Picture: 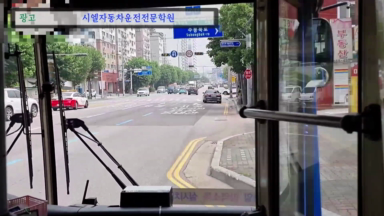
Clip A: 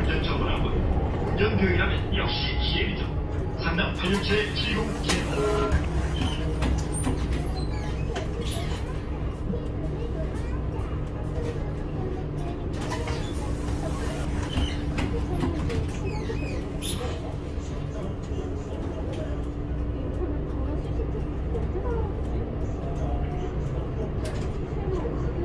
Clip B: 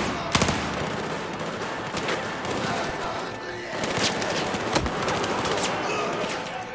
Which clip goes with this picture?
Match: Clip A